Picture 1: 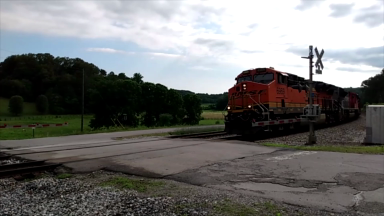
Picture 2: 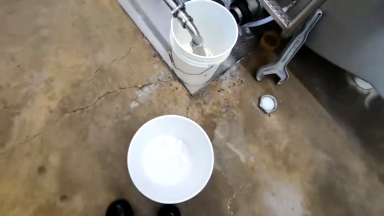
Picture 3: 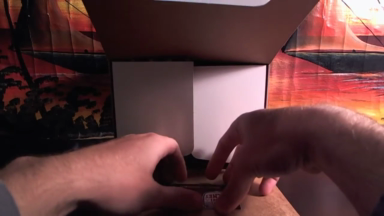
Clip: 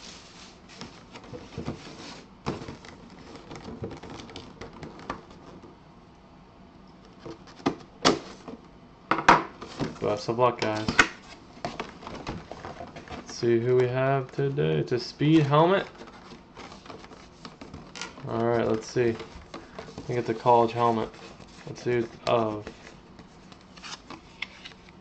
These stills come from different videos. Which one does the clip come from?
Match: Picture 3